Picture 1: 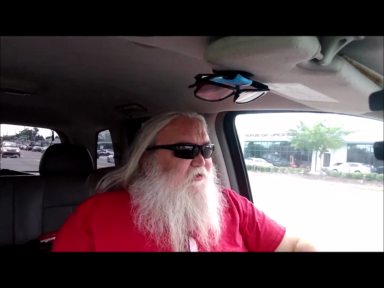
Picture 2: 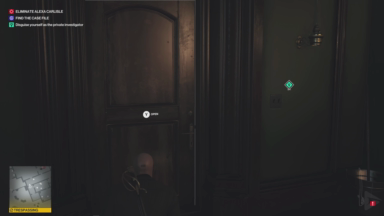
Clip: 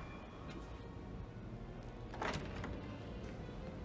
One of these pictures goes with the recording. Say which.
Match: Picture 2